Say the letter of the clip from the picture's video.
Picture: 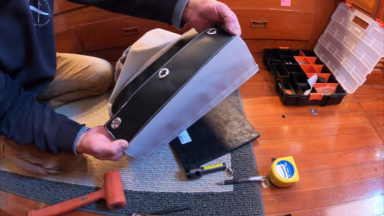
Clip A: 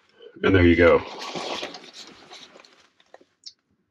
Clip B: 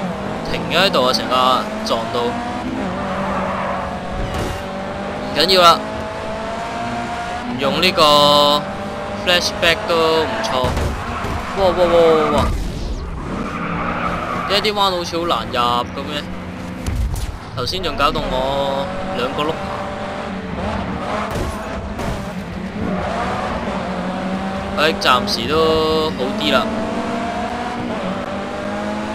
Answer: A